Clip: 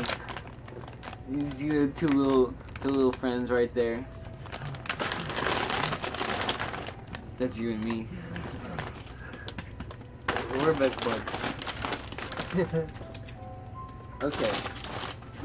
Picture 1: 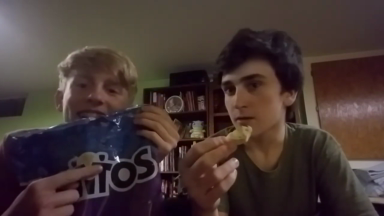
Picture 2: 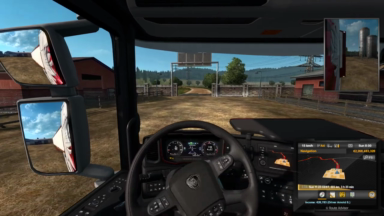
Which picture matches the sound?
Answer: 1